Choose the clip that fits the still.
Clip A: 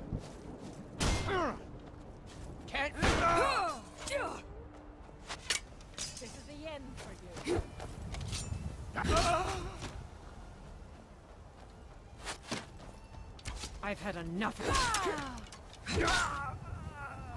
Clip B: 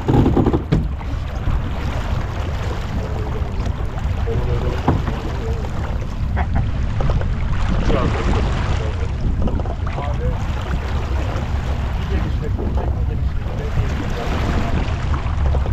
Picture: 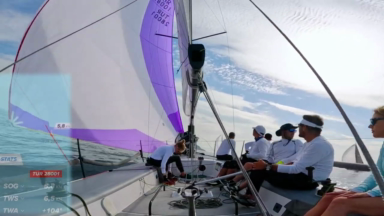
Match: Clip B